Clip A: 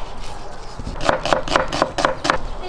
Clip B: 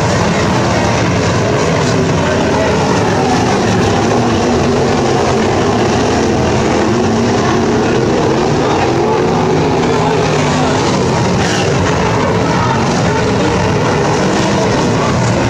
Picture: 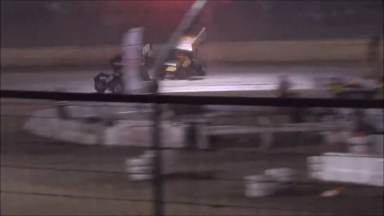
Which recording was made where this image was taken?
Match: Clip B